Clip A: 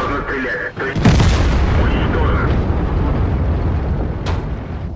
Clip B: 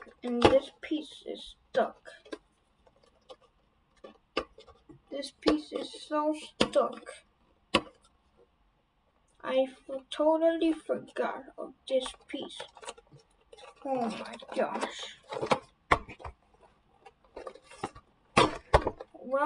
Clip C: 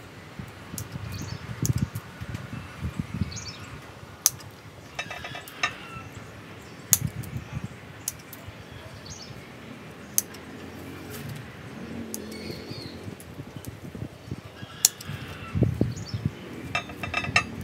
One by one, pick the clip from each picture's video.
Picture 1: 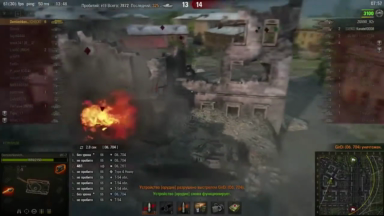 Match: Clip A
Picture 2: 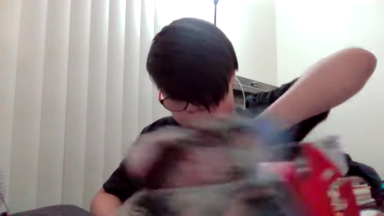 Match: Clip B